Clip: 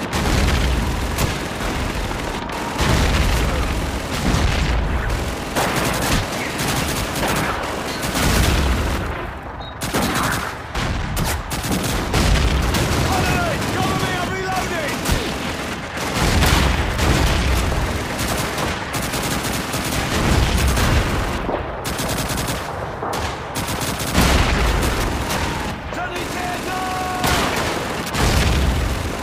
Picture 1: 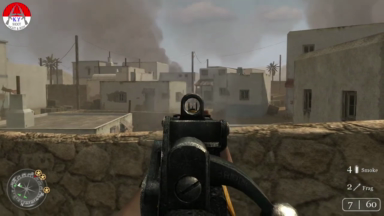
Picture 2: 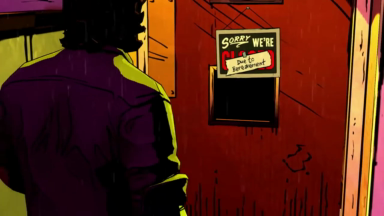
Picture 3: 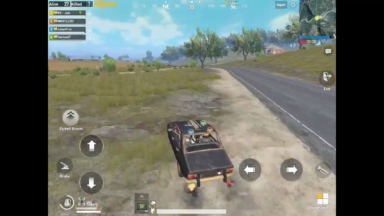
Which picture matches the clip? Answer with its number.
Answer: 1